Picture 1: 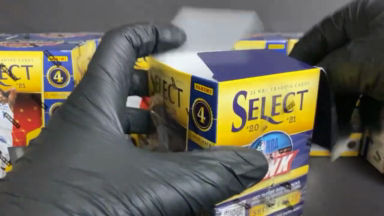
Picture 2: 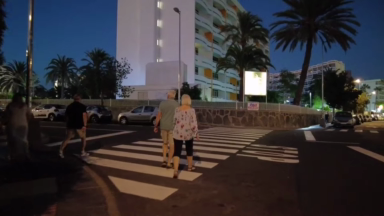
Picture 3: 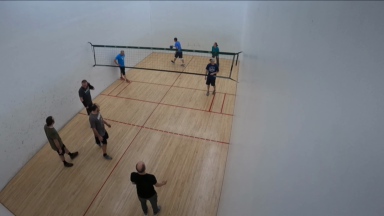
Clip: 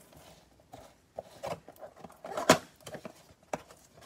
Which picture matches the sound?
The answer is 1